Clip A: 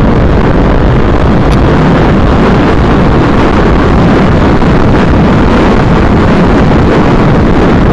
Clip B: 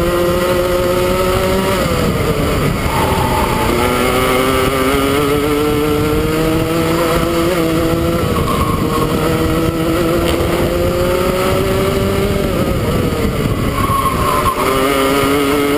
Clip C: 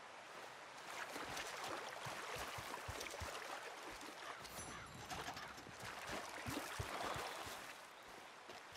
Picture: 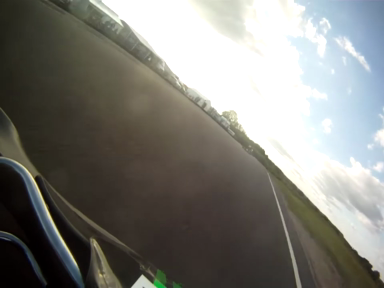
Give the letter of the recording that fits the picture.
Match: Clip B